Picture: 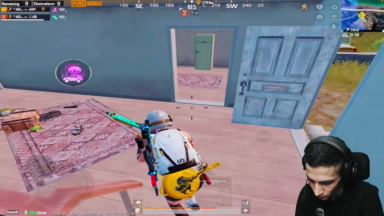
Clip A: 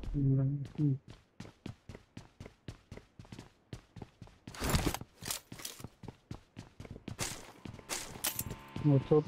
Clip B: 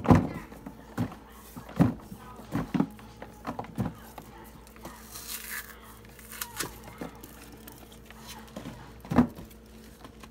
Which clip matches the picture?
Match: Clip A